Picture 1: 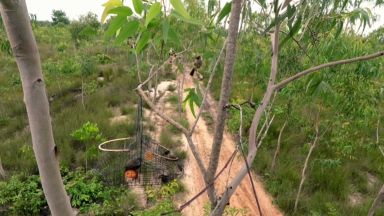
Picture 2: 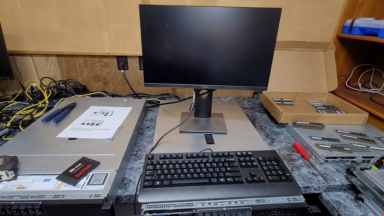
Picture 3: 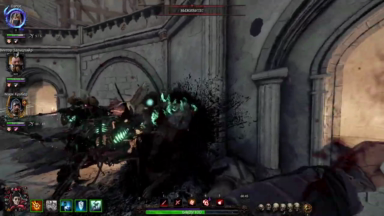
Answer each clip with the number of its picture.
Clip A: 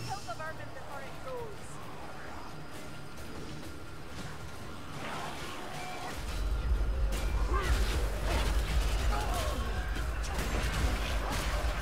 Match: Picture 3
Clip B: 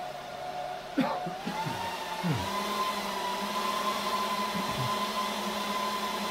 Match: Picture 2